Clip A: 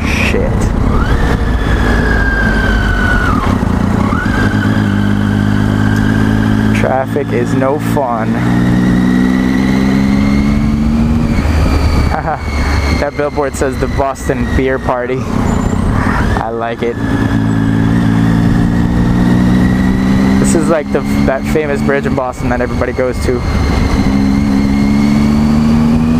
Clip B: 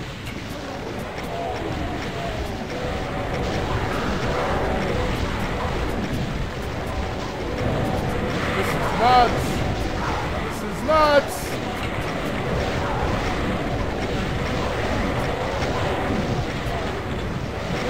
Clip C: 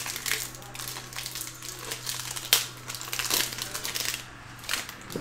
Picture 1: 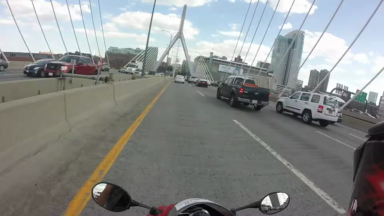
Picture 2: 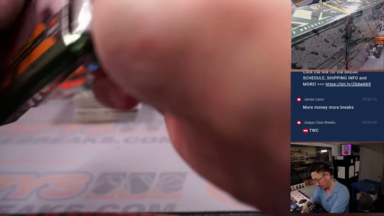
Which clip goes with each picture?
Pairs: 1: A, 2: C